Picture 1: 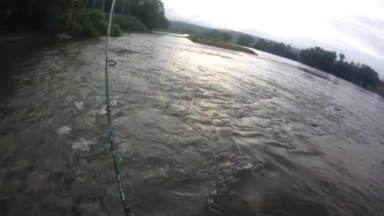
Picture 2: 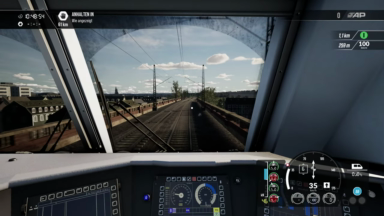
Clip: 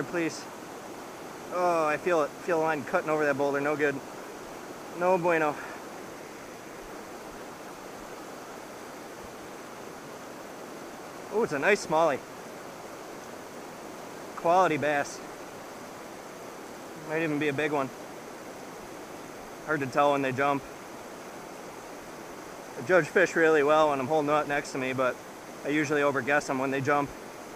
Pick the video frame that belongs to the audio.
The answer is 1